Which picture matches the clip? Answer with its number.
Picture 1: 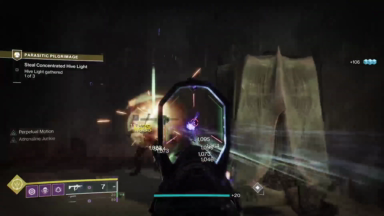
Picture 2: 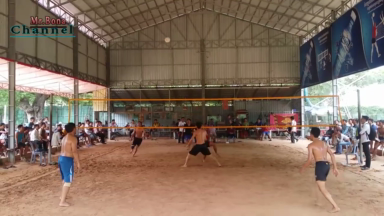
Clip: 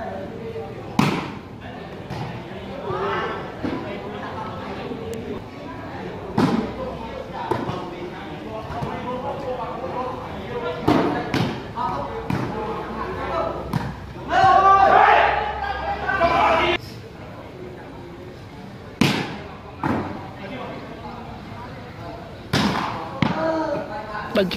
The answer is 2